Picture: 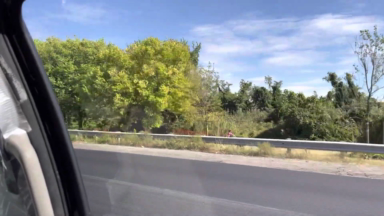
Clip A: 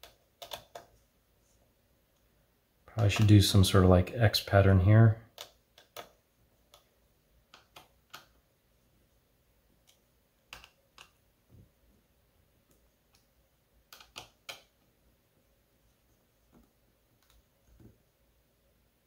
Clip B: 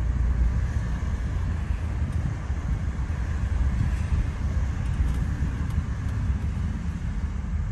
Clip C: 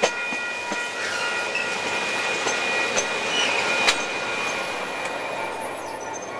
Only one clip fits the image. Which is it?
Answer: B